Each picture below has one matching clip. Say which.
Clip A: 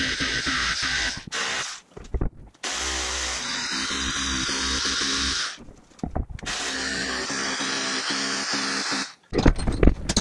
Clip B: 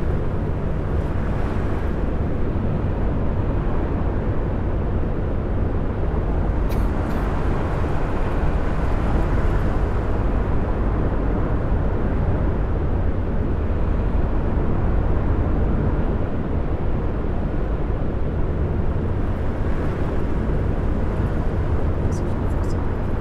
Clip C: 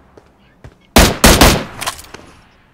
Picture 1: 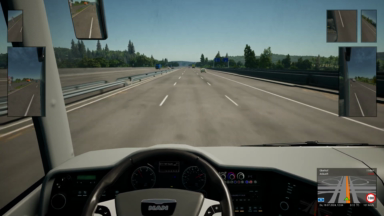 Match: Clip B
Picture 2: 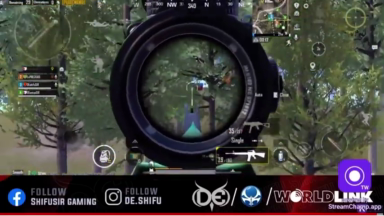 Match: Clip C